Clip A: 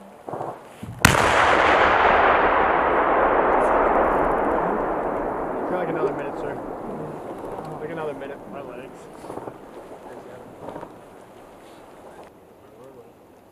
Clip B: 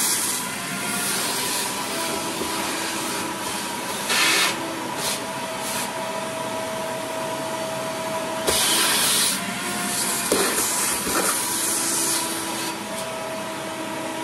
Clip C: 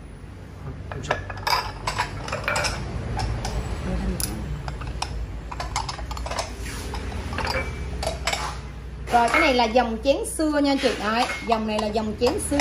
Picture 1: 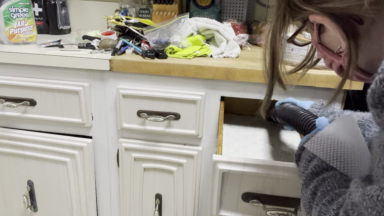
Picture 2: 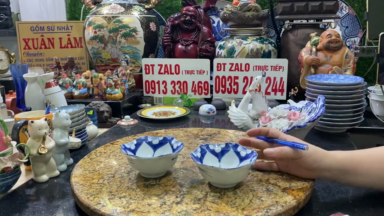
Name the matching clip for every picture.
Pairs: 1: B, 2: C